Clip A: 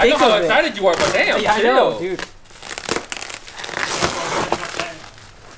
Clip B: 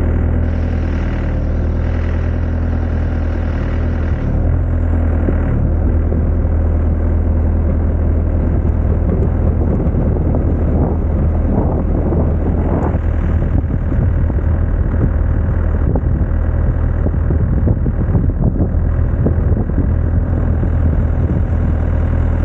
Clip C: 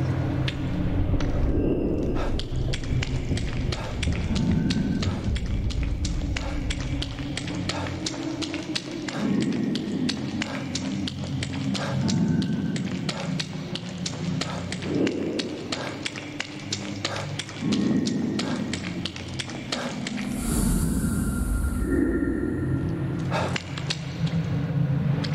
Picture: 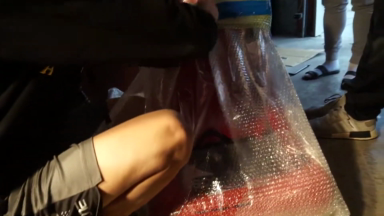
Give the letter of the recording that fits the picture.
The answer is A